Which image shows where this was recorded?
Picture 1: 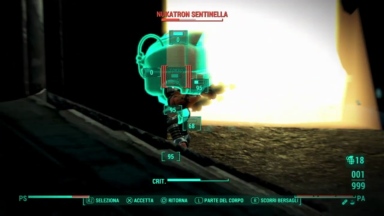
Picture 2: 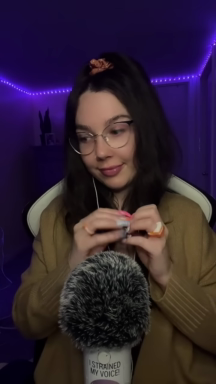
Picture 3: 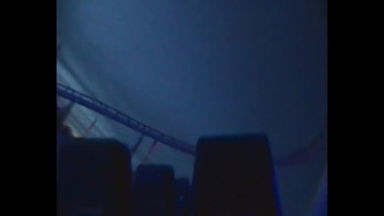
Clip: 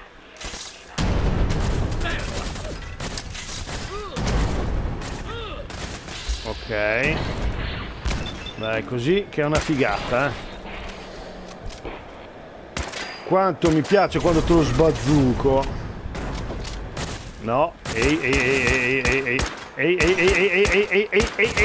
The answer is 1